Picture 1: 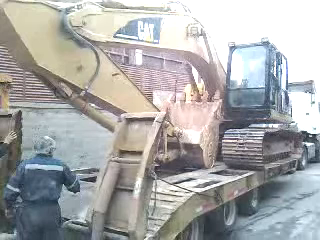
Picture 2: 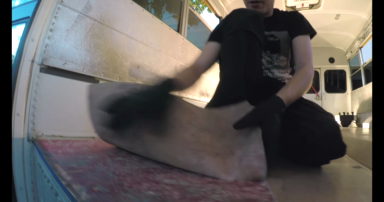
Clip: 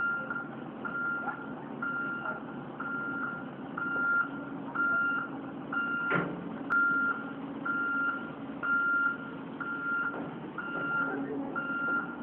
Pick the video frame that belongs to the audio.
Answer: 1